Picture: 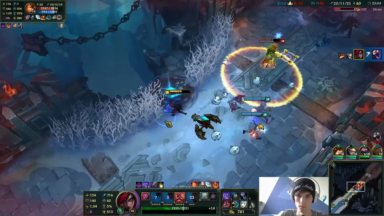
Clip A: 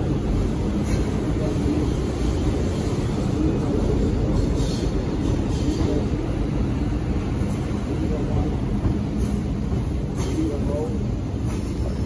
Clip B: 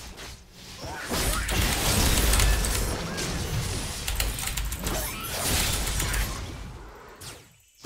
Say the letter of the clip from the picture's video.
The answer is B